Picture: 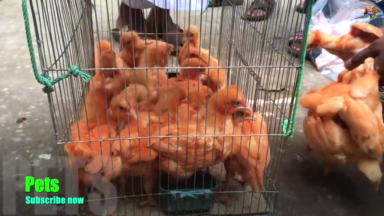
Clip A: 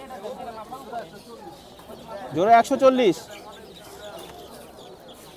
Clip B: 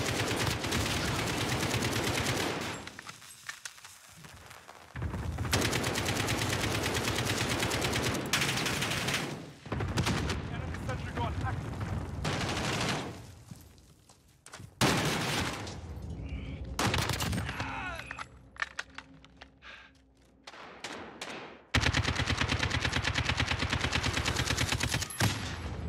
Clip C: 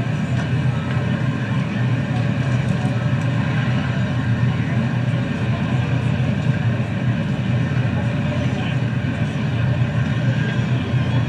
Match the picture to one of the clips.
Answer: A